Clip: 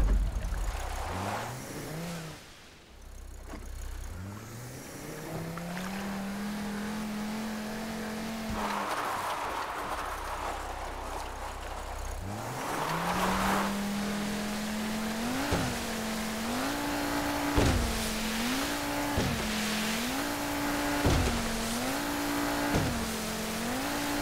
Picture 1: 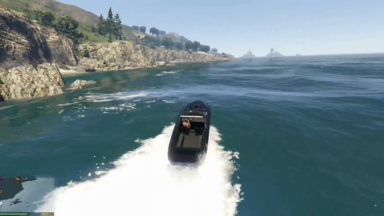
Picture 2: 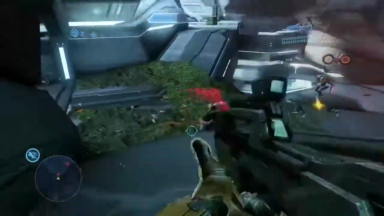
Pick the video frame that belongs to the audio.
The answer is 1